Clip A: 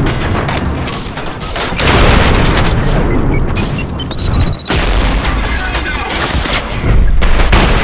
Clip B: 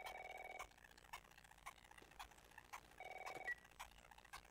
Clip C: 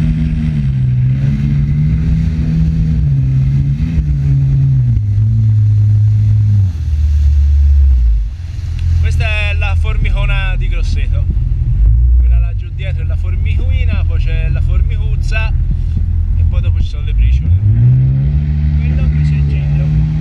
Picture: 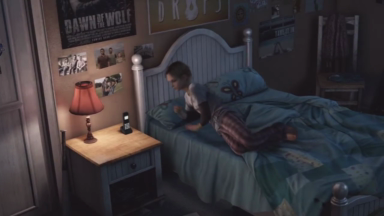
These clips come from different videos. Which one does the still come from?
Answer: B